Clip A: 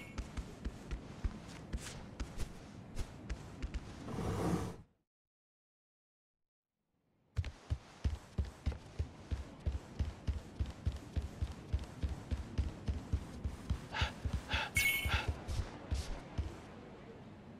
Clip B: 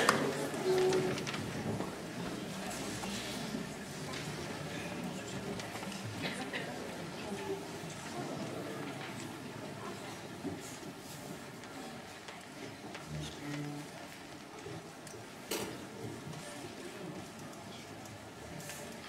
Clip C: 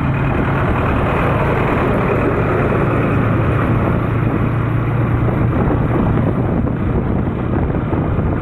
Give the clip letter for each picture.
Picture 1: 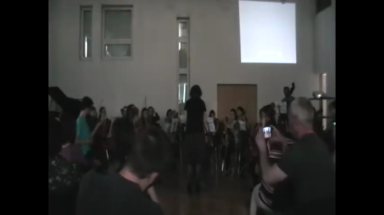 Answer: B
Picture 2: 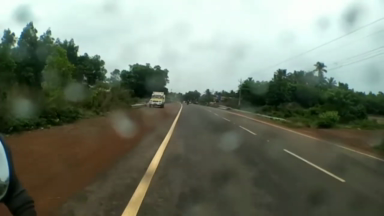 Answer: C